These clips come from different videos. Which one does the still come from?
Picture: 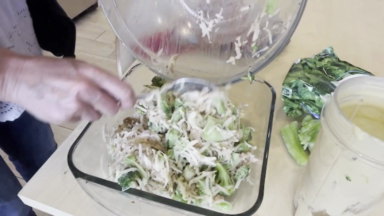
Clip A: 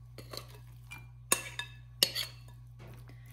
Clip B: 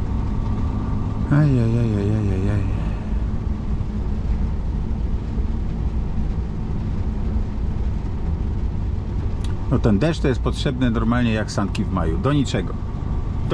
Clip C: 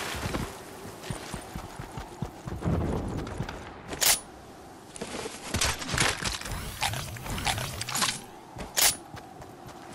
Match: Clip A